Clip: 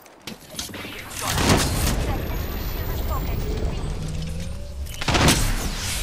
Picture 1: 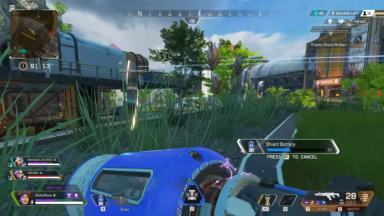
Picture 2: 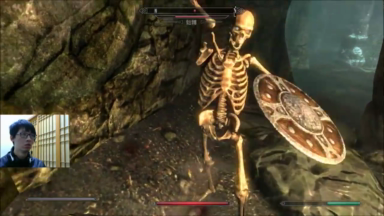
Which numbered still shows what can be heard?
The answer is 1